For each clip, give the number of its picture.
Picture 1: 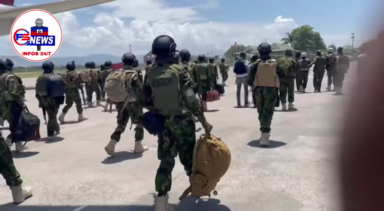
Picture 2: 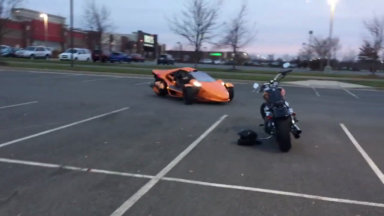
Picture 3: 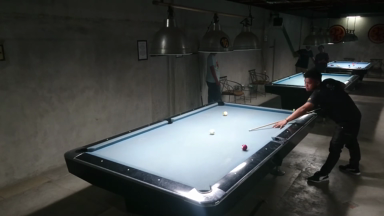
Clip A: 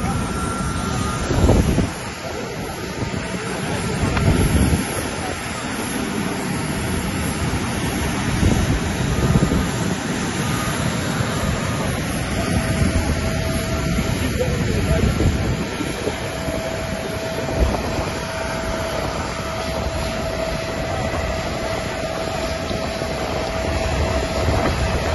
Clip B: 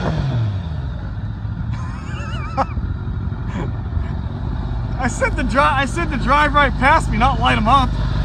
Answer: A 1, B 2